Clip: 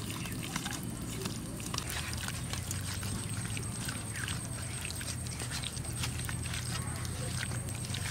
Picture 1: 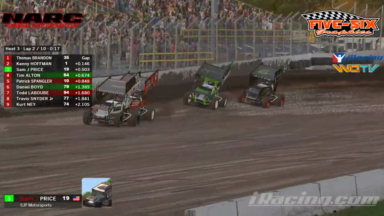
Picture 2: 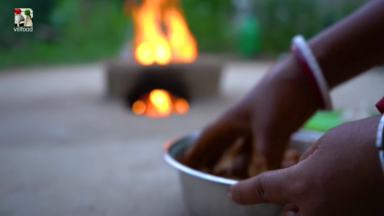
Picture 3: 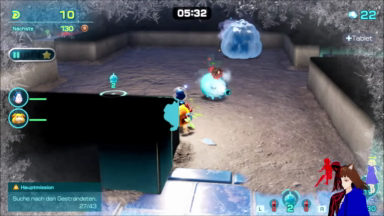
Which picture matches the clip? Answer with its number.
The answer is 2